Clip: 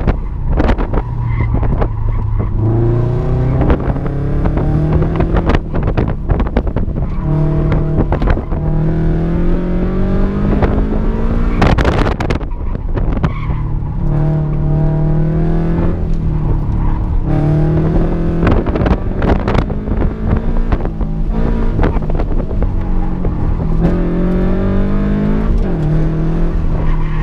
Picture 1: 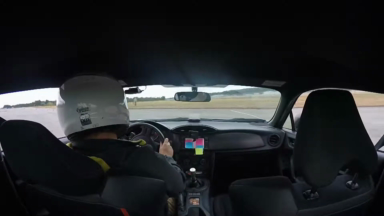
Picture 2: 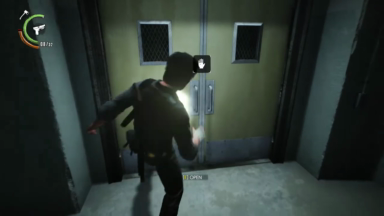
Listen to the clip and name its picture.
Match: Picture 1